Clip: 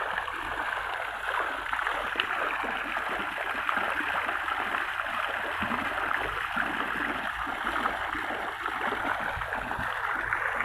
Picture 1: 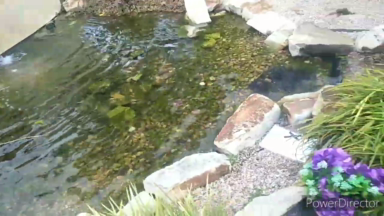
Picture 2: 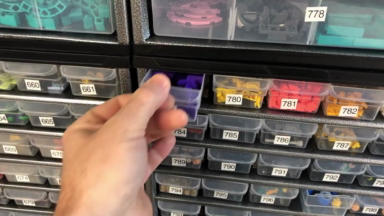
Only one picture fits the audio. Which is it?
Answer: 1